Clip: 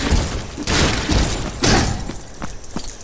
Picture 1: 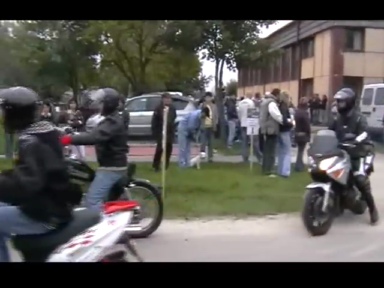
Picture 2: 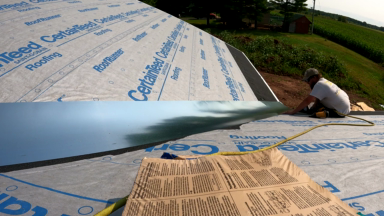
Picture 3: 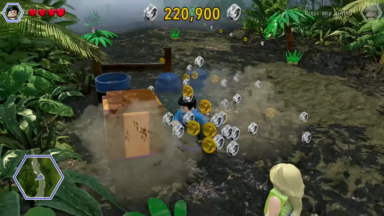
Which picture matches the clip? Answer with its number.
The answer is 3